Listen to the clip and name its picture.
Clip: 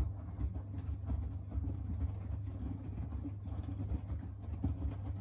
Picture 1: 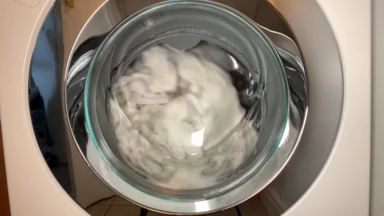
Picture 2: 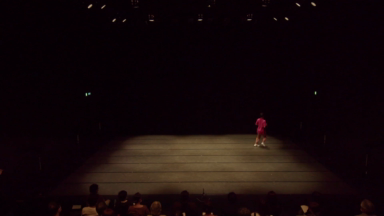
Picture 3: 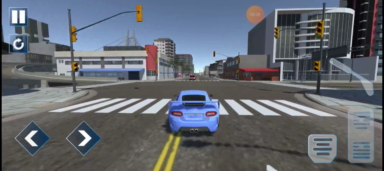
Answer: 1